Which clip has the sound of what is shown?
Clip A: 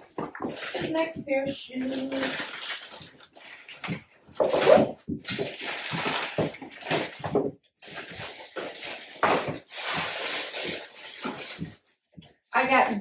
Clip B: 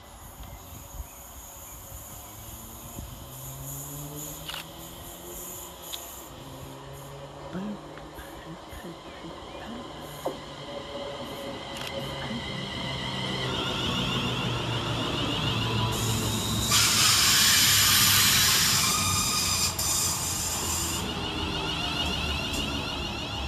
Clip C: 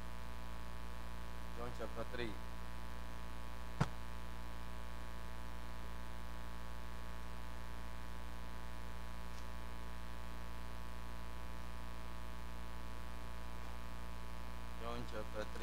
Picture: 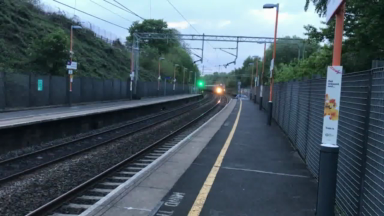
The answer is B